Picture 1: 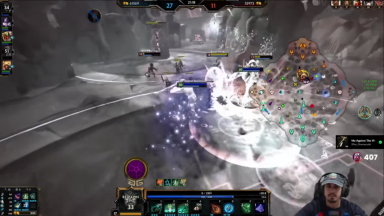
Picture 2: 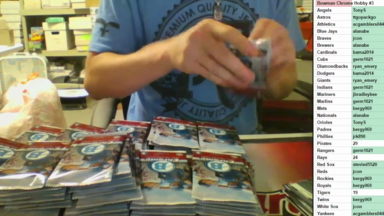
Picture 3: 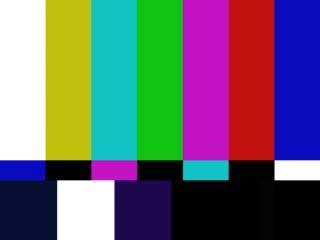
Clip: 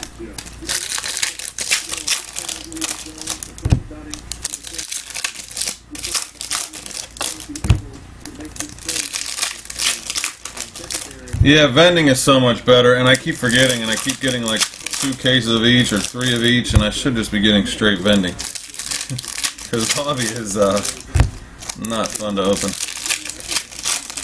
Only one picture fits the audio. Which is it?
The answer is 2